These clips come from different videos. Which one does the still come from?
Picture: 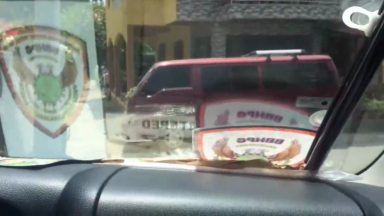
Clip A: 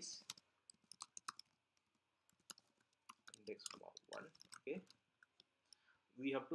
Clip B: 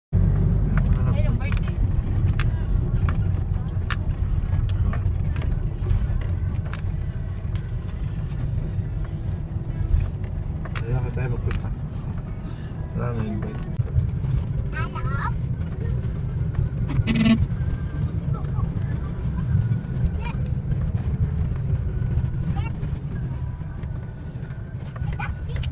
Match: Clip B